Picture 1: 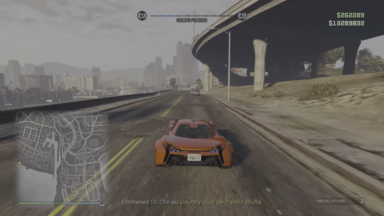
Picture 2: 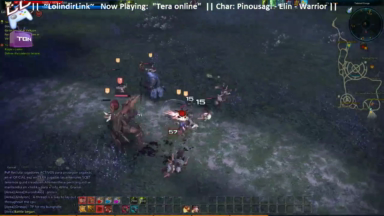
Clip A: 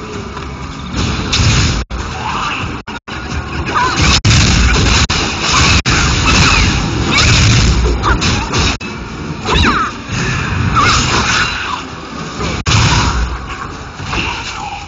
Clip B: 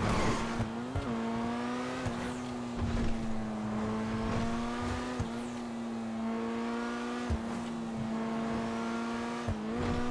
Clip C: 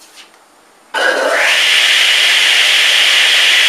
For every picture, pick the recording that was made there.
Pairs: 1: B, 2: A